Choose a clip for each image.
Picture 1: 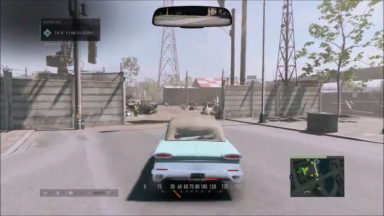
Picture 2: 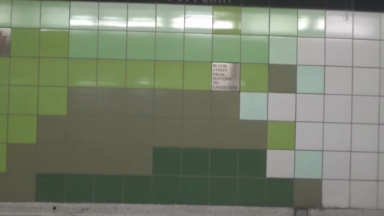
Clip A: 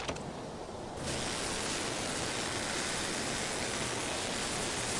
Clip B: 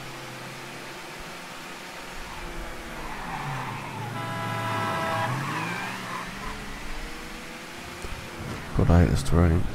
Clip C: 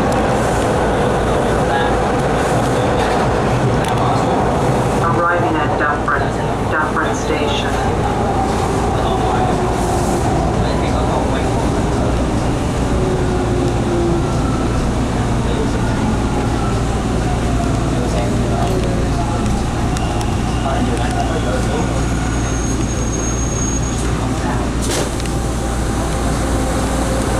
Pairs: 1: B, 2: C